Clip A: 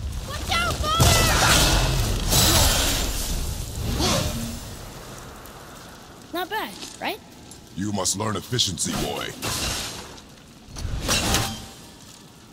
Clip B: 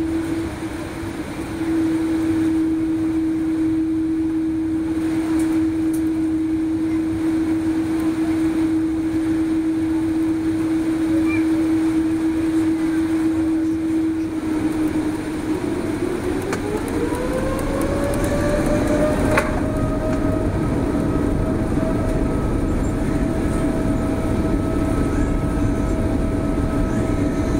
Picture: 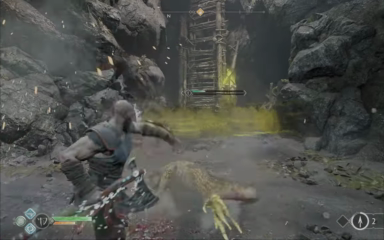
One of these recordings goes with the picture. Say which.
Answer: A